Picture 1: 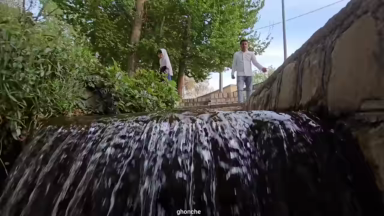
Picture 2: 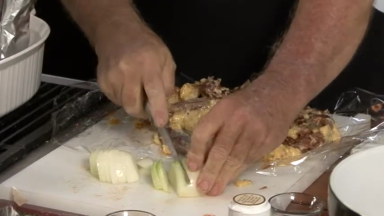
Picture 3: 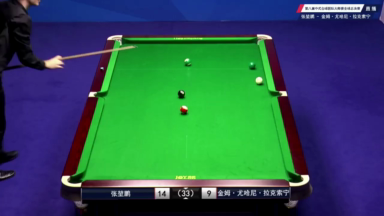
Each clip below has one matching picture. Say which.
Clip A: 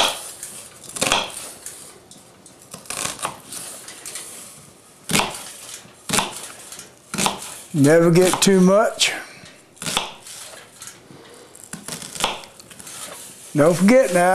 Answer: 2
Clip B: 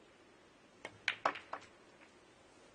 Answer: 3